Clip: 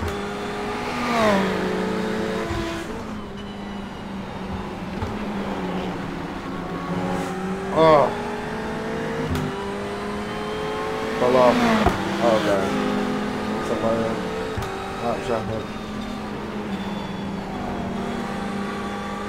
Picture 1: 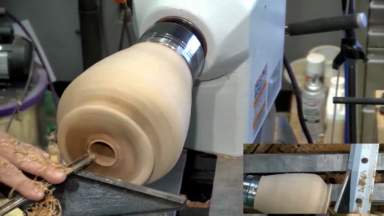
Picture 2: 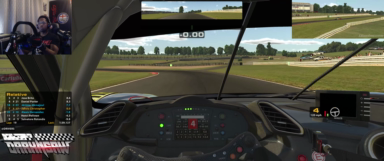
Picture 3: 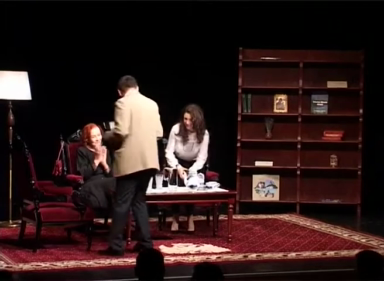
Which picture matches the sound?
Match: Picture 2